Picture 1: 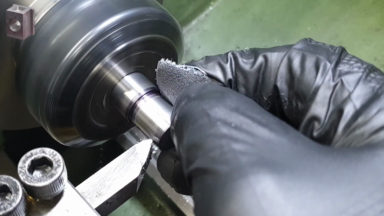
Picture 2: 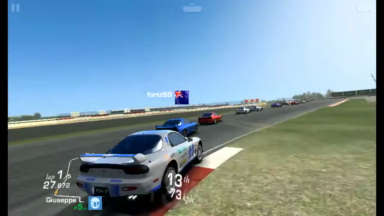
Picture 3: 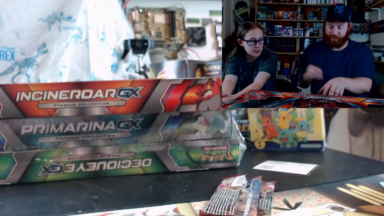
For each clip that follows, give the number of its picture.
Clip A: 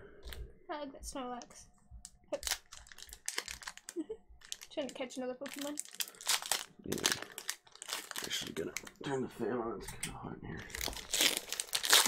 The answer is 3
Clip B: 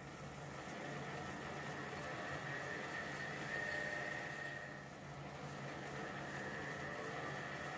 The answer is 1